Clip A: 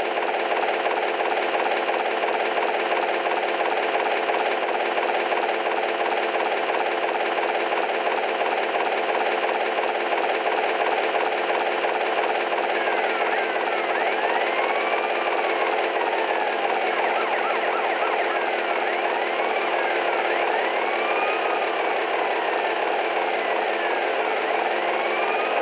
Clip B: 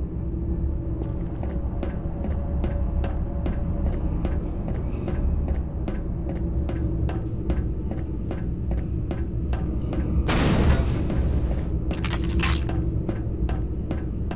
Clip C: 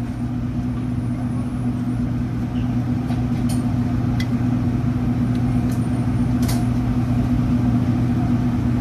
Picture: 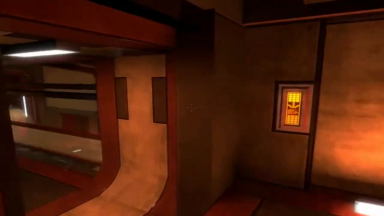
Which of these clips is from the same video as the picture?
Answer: B